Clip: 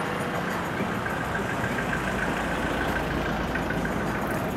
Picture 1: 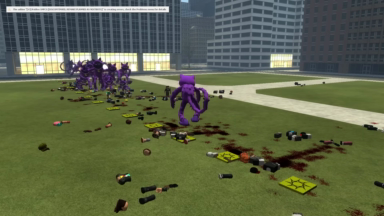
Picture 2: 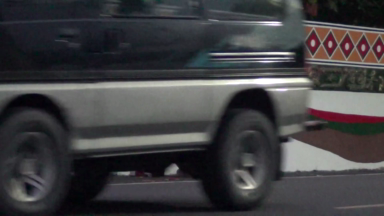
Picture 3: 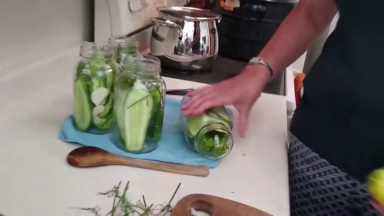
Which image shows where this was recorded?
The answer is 2